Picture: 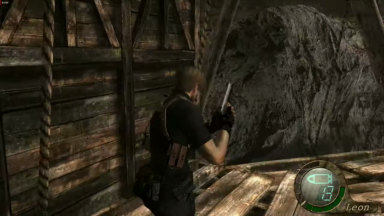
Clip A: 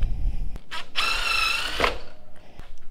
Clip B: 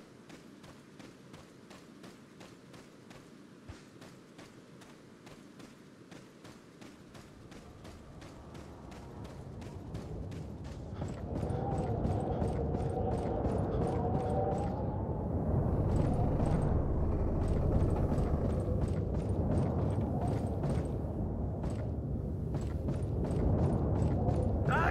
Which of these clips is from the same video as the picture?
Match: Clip B